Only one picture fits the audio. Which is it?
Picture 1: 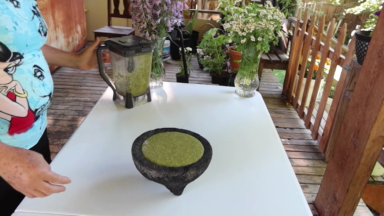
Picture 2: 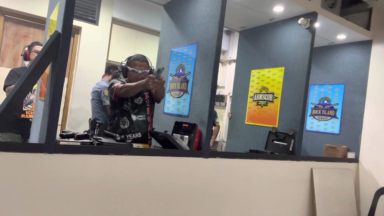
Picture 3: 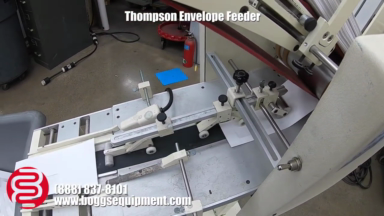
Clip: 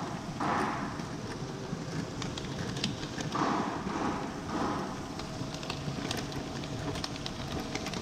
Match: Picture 3